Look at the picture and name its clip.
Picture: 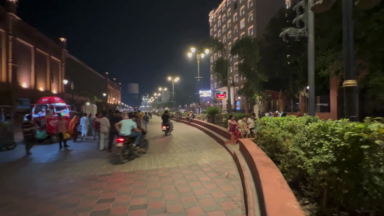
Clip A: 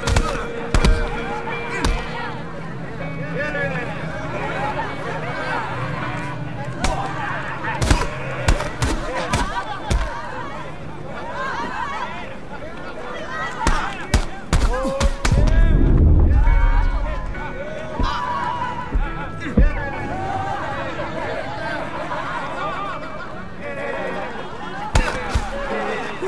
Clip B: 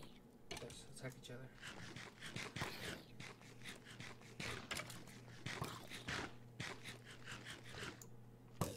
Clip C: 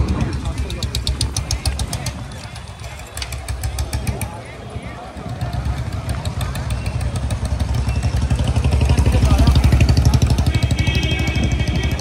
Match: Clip C